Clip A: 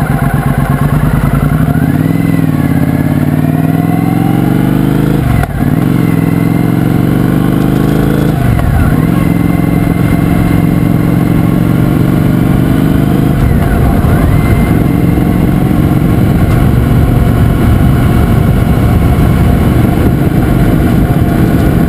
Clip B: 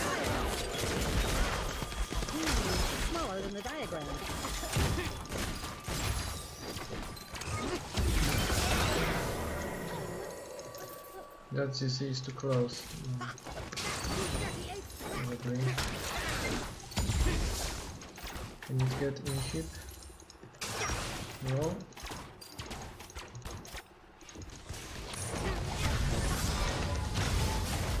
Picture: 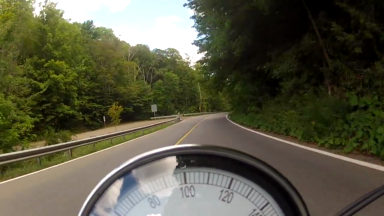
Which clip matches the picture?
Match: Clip A